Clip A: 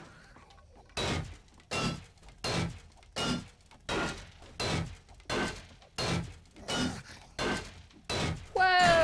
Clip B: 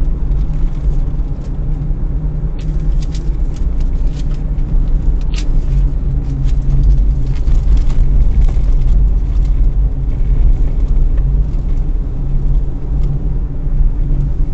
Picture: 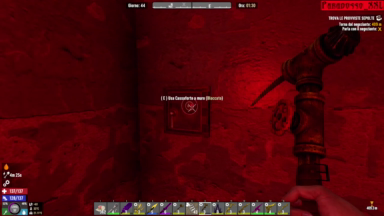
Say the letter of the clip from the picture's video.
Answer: A